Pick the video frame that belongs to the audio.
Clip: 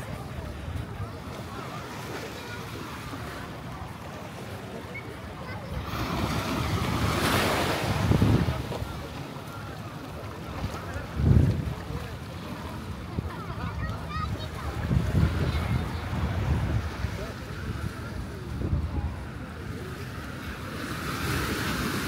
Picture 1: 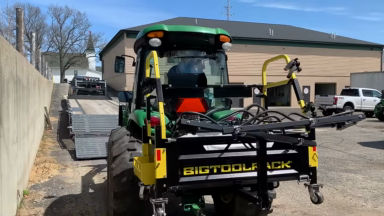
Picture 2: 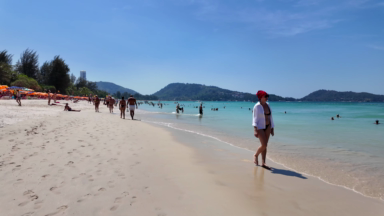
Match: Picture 2